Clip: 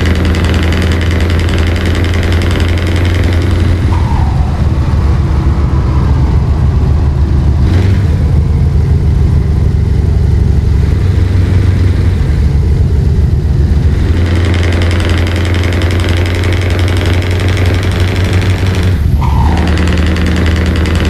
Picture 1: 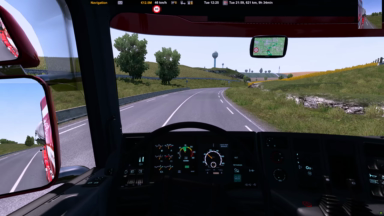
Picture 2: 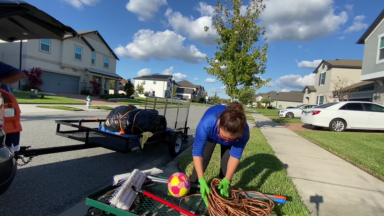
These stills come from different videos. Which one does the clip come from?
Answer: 1